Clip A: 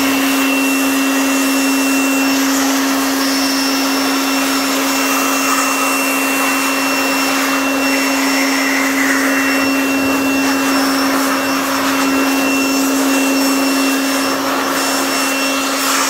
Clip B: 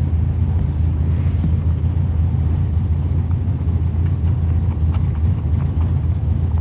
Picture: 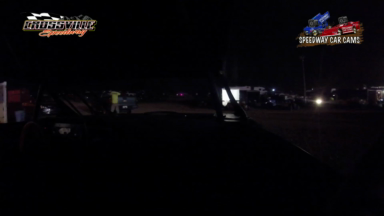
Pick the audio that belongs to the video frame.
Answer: B